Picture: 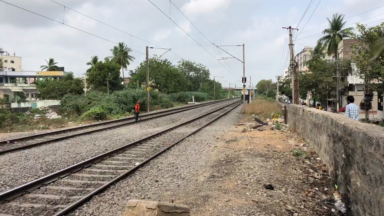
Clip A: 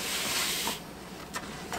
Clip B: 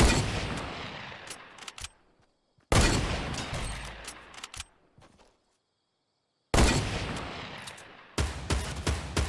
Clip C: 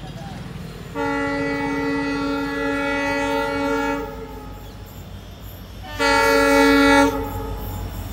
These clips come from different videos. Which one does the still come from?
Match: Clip C